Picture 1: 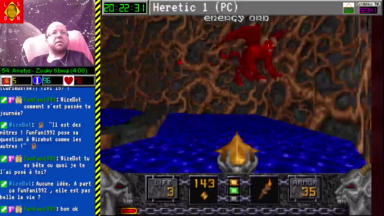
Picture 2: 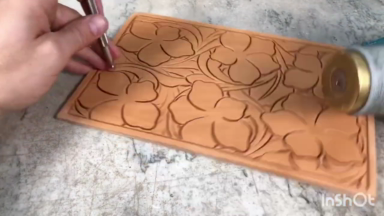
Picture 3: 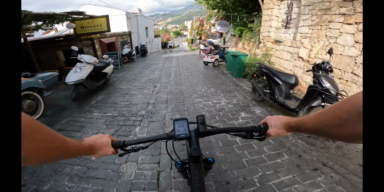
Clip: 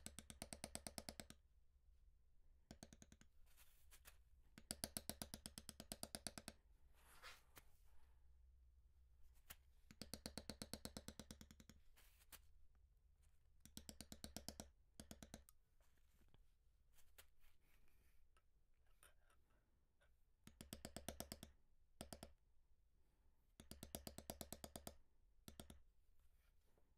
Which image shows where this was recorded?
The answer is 2